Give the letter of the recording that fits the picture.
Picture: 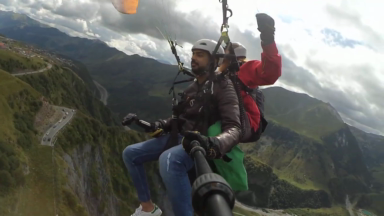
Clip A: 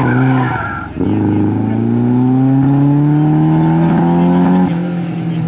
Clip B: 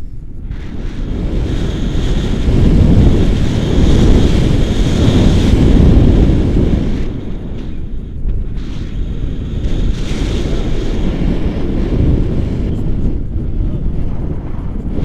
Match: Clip B